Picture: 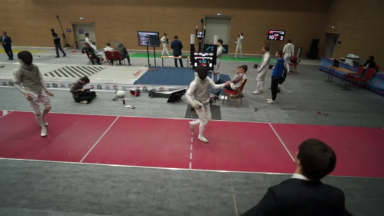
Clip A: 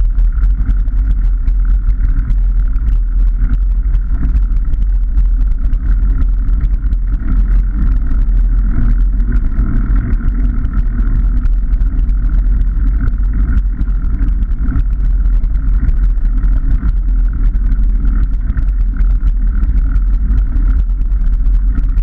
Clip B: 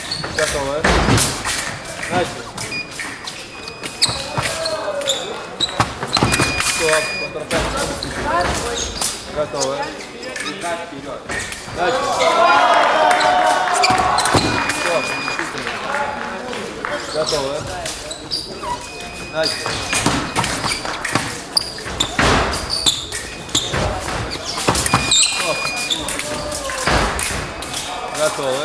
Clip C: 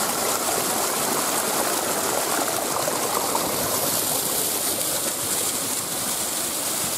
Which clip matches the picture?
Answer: B